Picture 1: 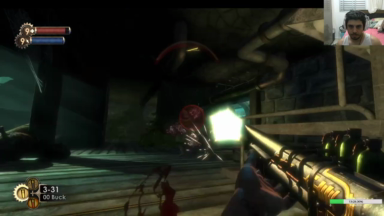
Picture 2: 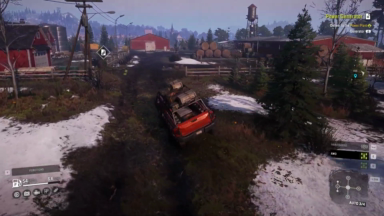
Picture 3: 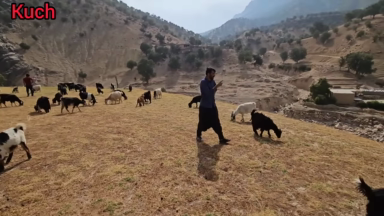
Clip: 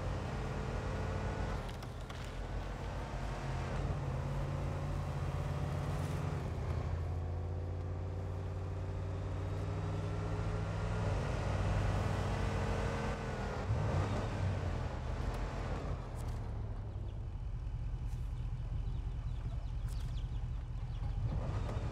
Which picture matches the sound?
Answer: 2